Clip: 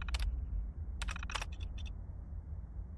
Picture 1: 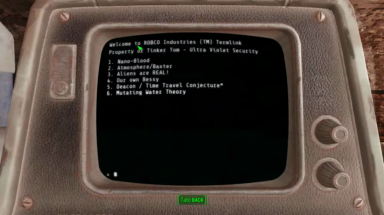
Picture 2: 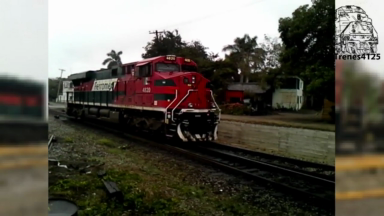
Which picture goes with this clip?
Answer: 1